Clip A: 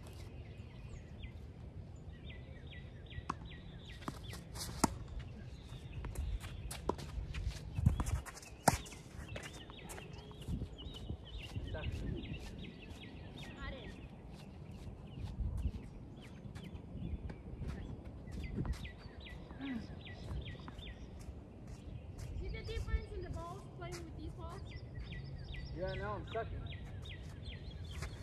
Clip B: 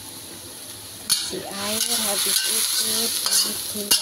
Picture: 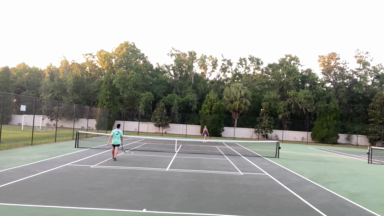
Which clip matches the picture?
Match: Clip A